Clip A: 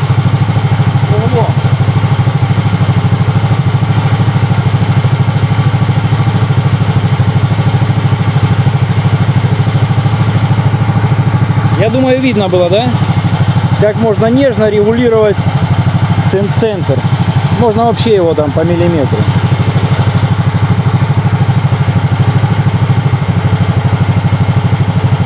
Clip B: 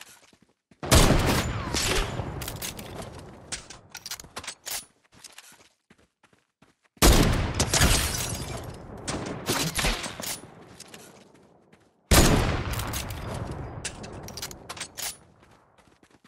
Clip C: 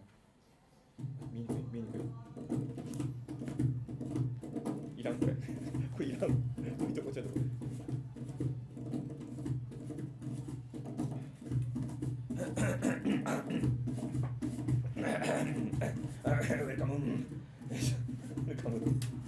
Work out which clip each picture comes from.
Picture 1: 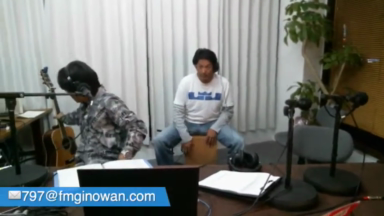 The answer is C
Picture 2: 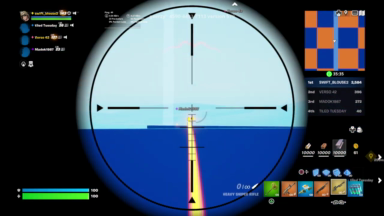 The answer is B